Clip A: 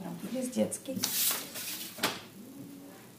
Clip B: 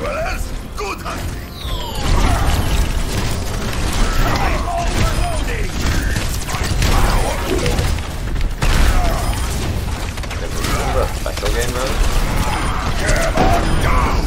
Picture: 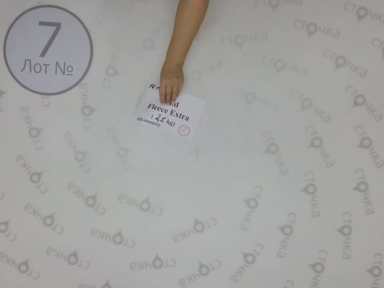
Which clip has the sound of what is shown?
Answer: A